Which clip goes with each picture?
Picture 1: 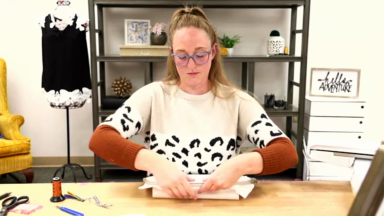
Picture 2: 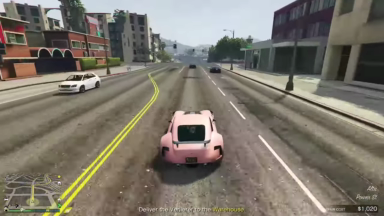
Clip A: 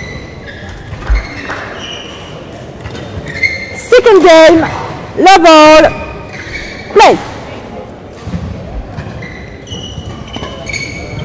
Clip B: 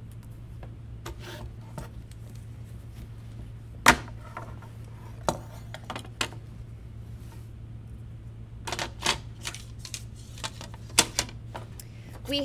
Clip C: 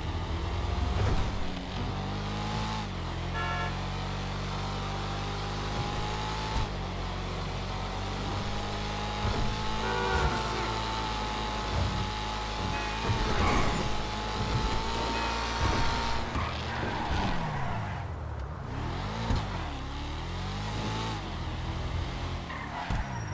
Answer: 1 B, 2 C